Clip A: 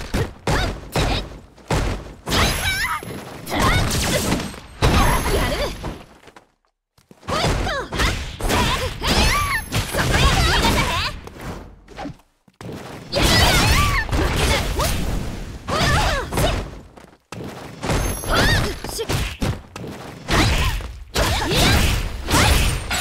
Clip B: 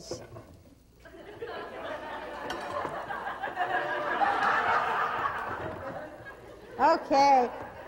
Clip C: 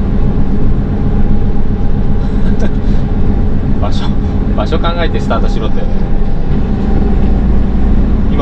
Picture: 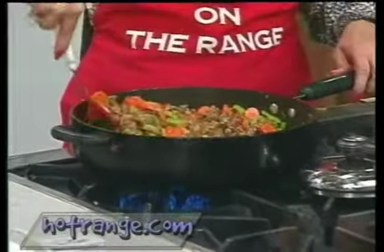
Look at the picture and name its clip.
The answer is B